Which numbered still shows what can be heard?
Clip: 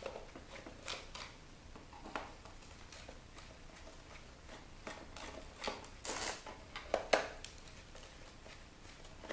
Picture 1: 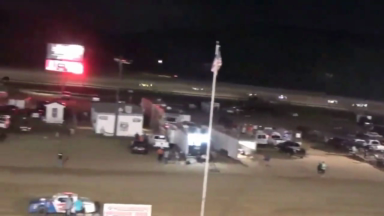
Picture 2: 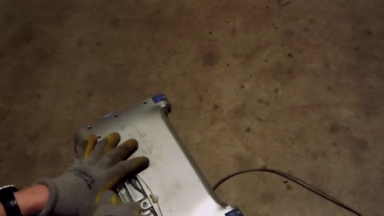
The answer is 2